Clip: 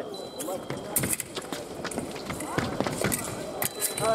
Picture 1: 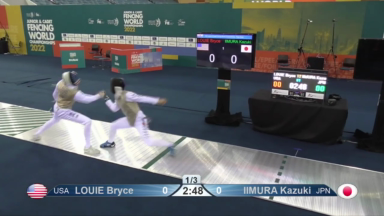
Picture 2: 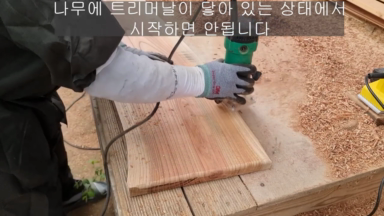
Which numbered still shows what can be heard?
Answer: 1